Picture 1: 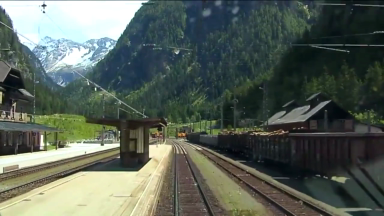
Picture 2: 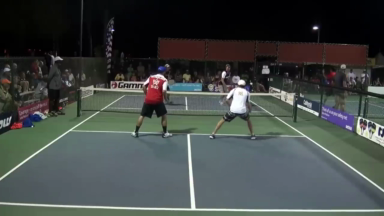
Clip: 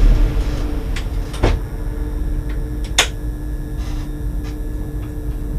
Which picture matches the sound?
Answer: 1